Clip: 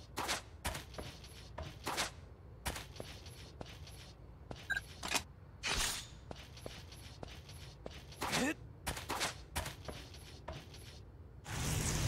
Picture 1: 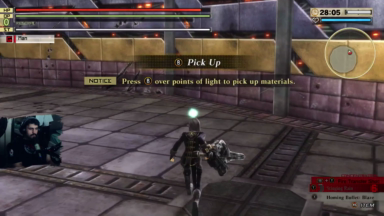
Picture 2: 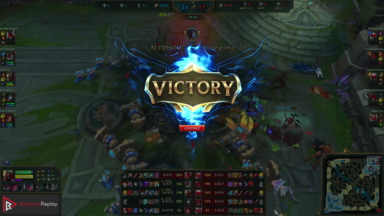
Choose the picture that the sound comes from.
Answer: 1